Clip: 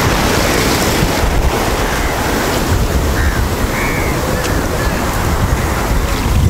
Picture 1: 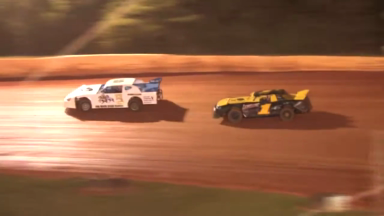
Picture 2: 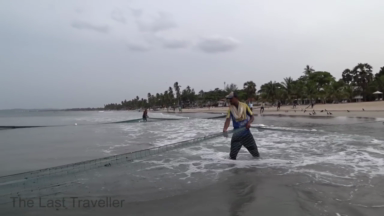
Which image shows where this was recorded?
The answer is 2